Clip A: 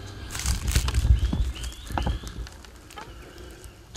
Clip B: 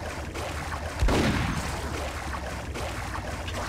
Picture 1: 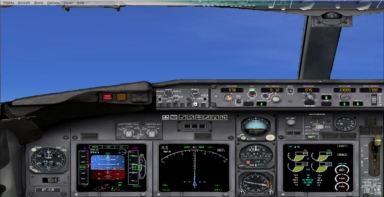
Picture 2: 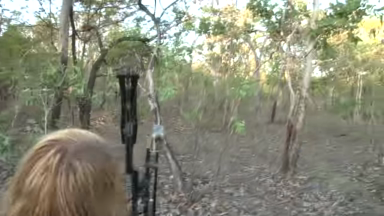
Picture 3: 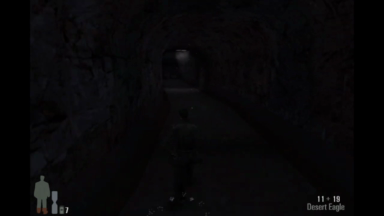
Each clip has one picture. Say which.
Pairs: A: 2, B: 3